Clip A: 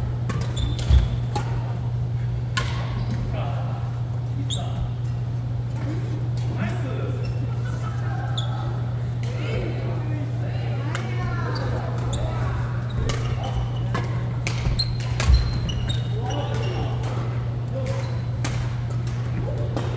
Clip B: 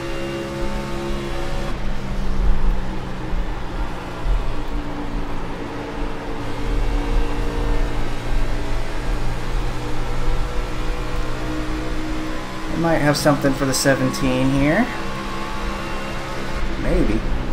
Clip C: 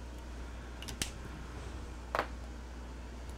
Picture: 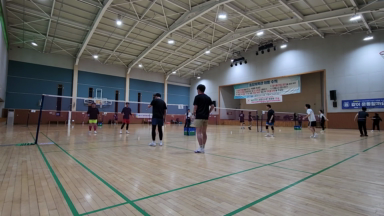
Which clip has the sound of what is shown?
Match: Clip A